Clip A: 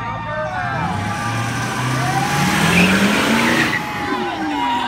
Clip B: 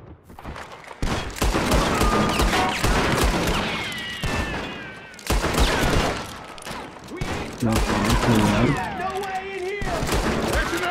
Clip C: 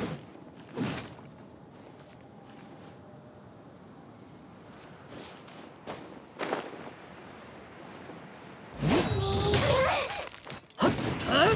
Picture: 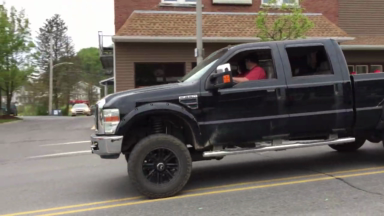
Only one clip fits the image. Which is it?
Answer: A